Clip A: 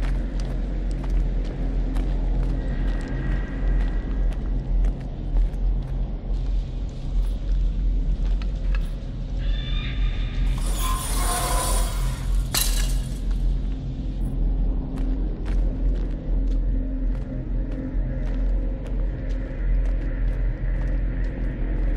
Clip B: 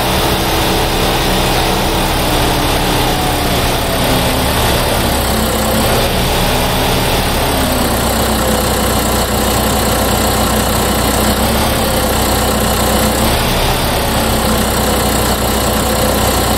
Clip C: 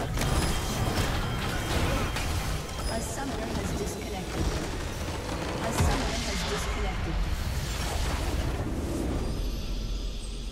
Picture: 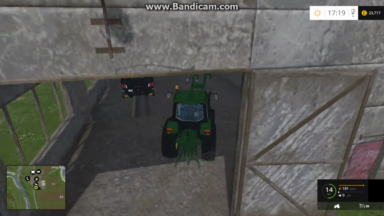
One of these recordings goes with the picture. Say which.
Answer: B